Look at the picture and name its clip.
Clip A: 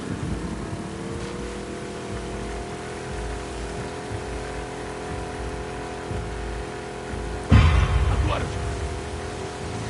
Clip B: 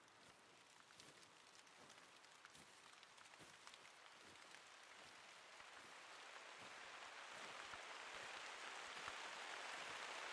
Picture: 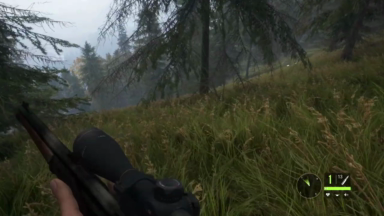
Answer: B